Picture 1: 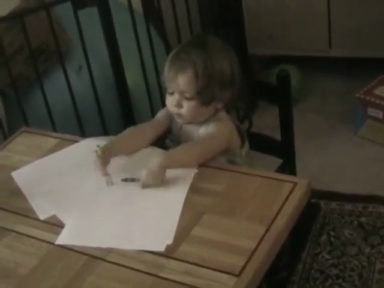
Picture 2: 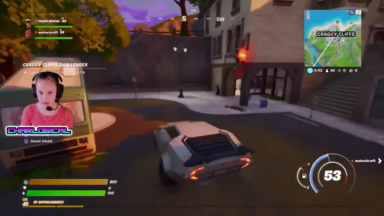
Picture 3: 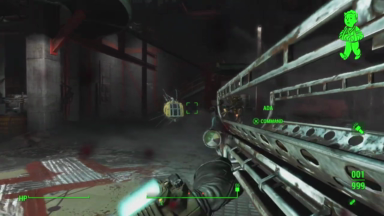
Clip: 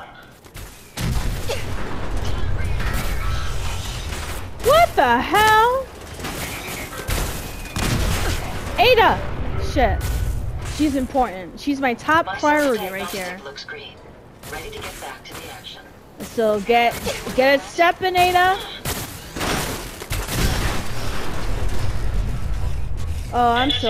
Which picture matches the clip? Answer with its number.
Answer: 3